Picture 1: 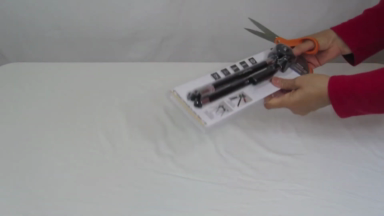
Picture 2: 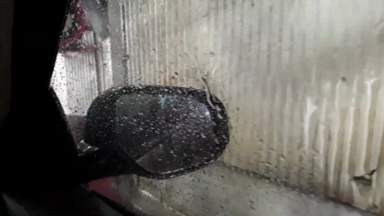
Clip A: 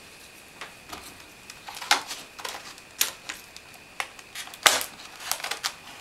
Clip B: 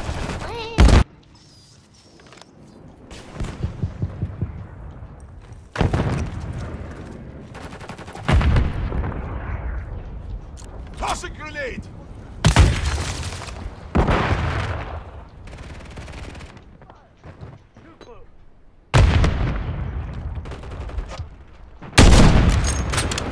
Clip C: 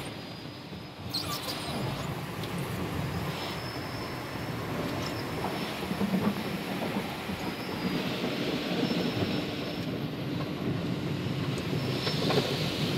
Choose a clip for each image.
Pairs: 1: A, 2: C